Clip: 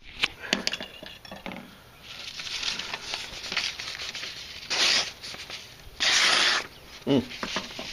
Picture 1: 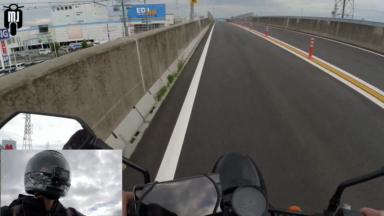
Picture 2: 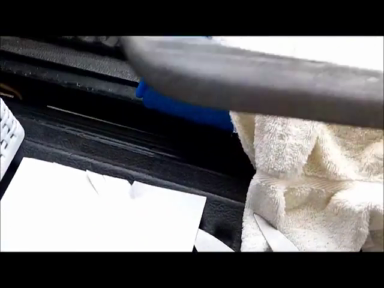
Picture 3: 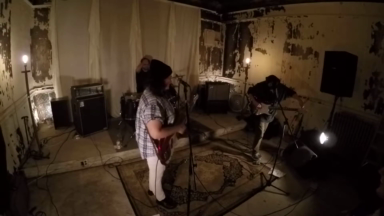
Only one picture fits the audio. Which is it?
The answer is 2